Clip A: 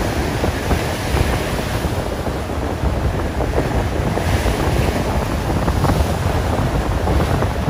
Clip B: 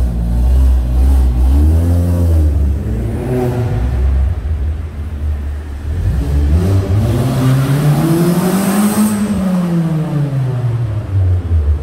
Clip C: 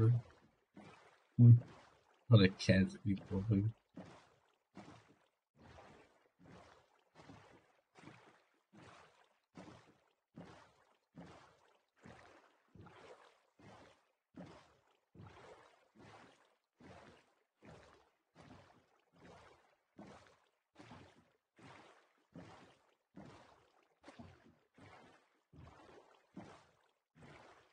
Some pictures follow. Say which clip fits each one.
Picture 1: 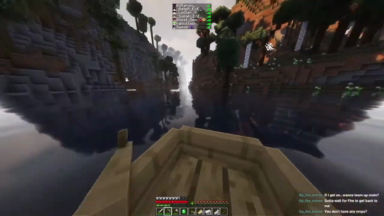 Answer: C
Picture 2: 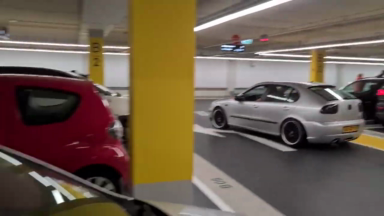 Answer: B